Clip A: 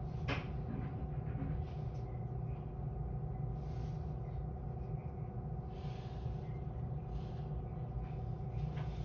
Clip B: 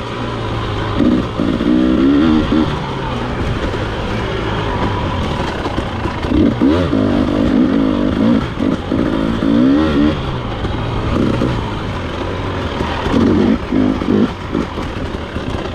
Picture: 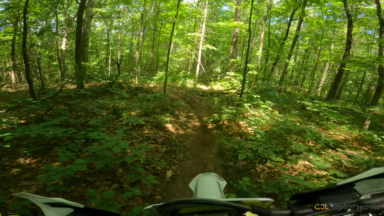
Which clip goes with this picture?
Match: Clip B